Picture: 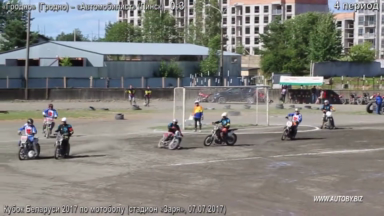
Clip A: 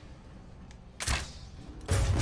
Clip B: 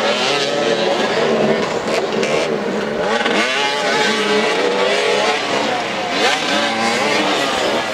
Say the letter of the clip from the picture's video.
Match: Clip B